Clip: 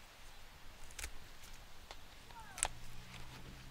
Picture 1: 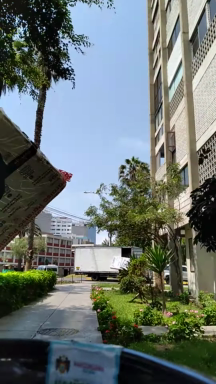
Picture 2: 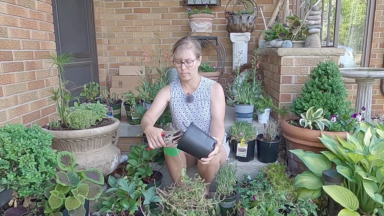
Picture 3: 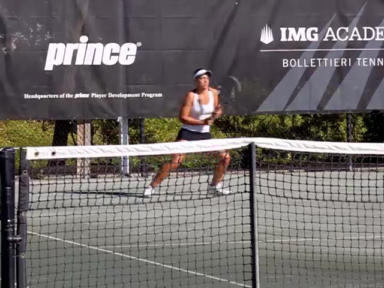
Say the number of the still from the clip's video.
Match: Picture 2